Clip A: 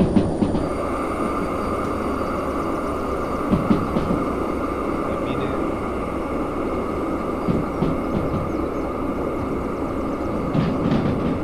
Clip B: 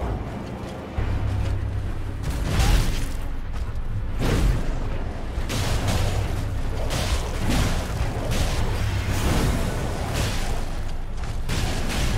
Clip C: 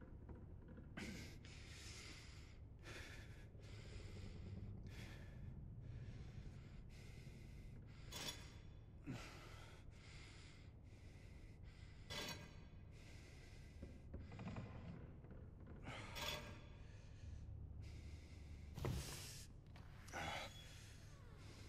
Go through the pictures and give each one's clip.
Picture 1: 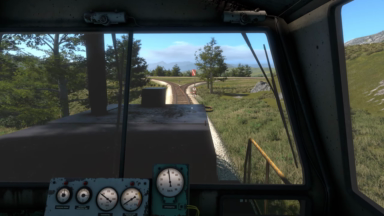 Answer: A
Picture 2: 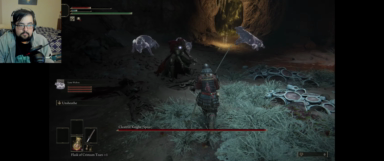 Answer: B